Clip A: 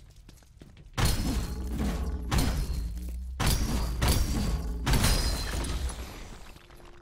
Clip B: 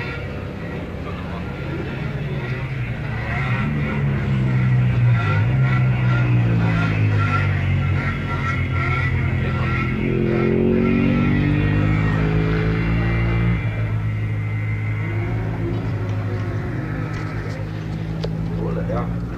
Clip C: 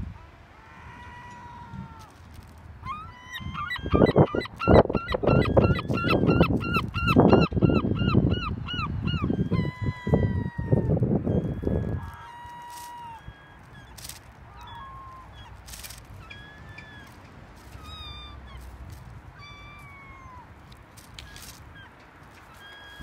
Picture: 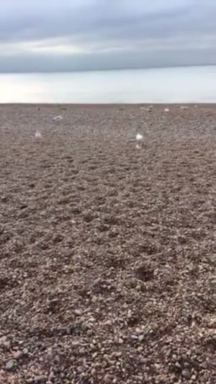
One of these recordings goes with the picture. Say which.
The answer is C